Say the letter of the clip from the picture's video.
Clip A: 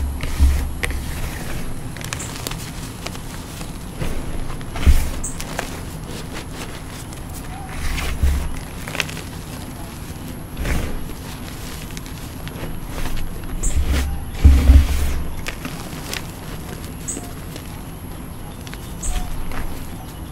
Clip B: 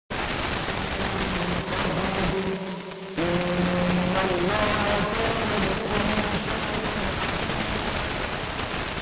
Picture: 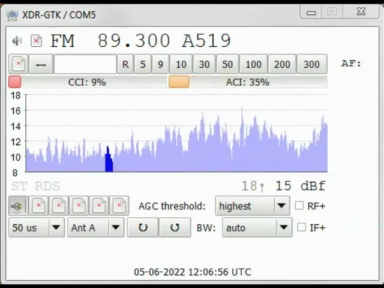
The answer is B